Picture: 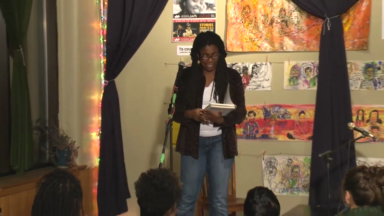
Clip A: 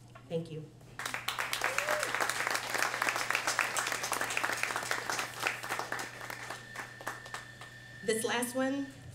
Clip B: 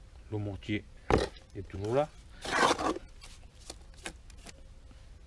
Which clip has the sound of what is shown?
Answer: A